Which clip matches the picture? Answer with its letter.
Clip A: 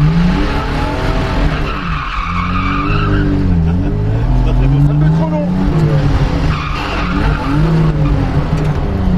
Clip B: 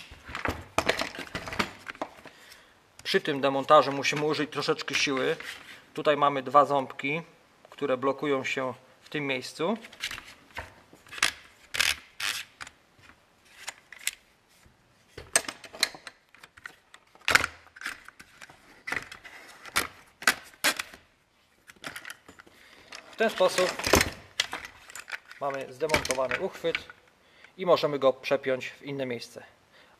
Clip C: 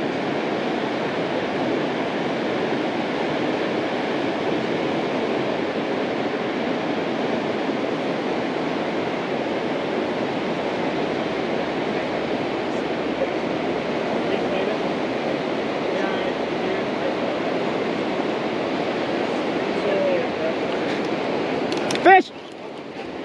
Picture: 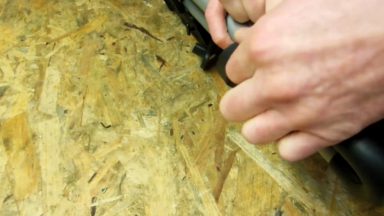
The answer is B